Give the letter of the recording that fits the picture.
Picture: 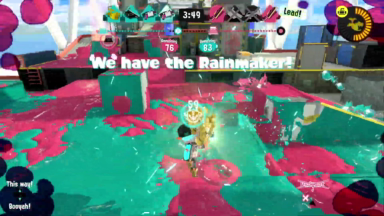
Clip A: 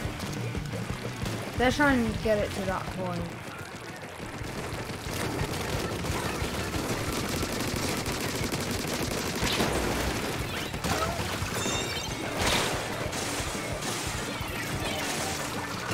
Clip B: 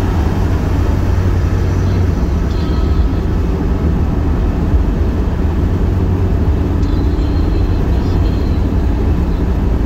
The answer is A